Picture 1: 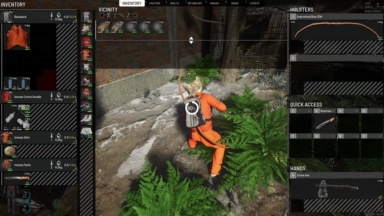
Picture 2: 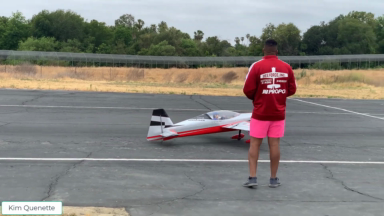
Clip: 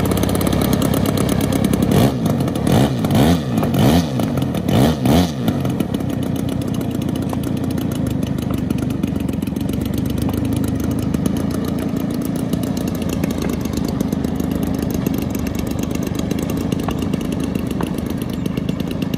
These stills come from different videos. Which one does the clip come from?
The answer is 2